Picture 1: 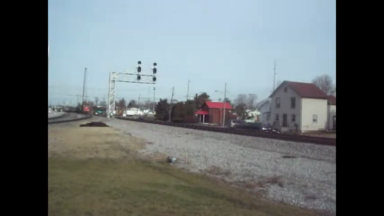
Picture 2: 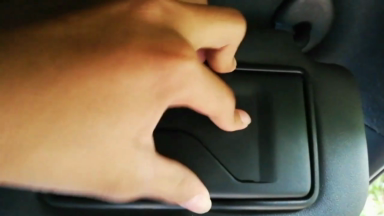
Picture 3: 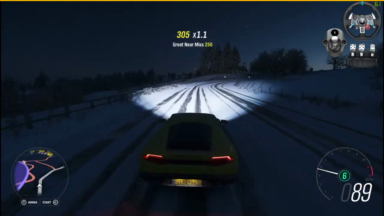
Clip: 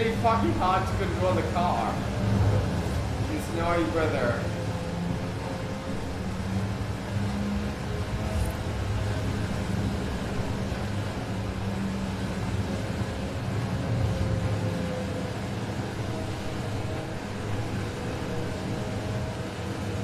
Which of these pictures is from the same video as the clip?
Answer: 3